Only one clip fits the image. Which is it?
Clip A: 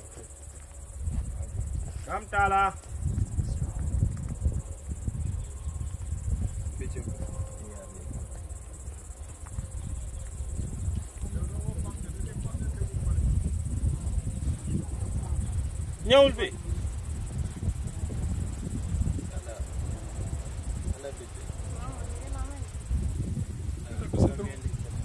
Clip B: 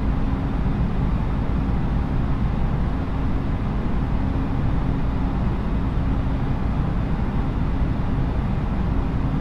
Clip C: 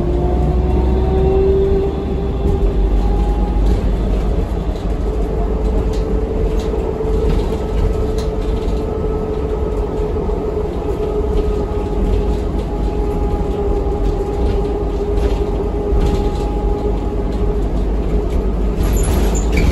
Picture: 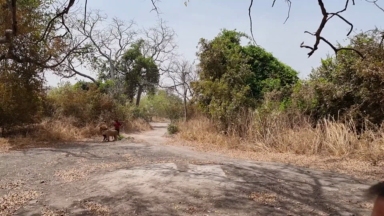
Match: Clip A